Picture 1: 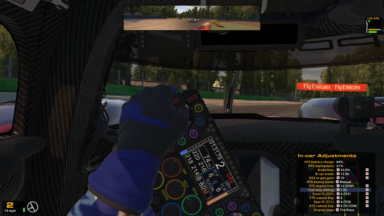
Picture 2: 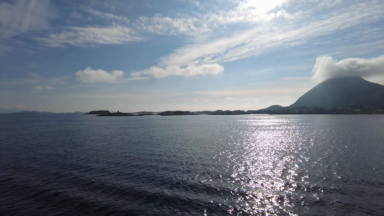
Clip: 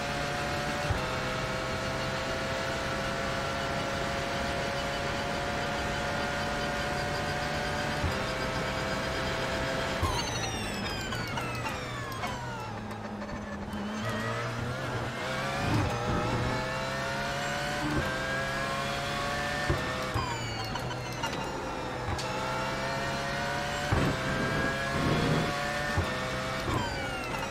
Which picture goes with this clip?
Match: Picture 1